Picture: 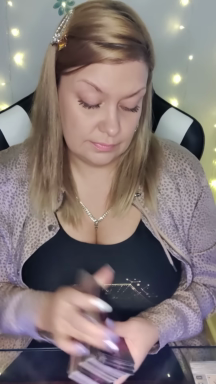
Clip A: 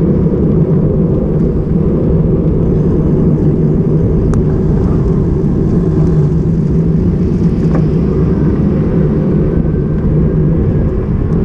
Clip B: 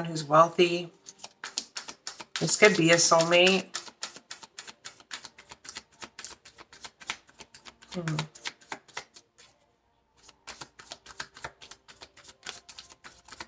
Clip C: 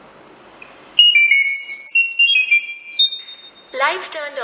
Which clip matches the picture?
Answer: B